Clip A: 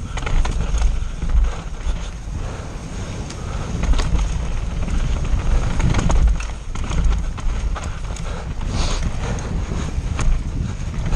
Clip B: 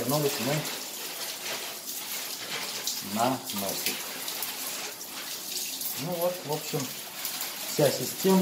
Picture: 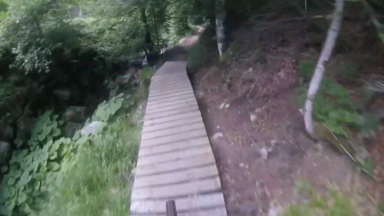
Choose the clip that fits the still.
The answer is A